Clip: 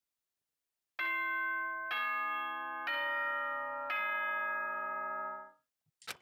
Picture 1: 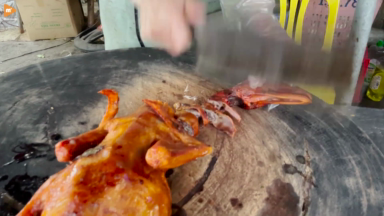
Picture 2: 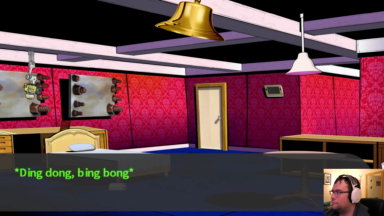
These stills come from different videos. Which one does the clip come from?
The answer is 2